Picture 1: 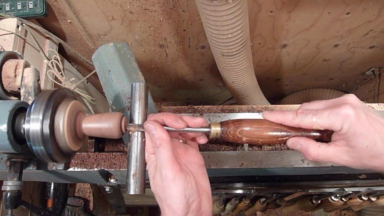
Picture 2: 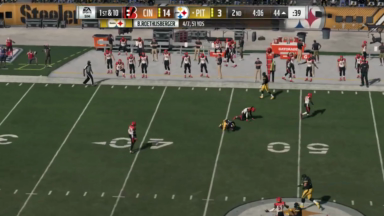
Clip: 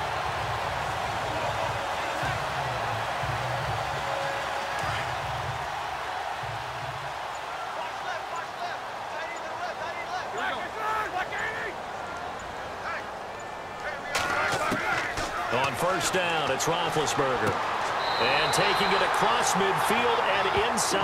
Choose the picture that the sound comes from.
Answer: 2